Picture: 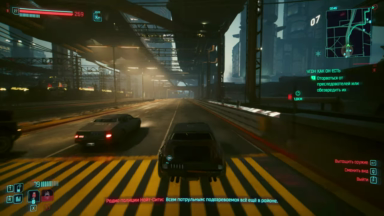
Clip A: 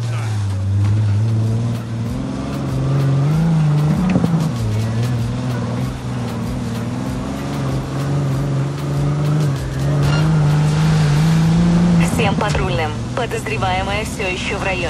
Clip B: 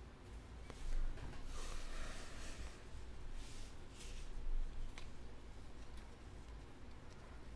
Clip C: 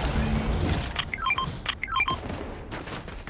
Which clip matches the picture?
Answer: A